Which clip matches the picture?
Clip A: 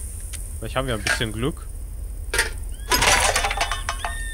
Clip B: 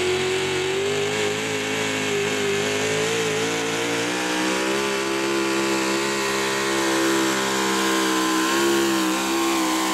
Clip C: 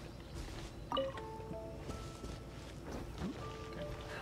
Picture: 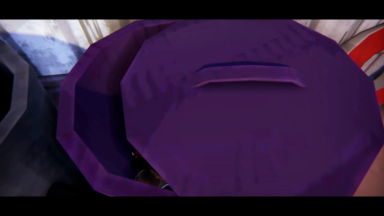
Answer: A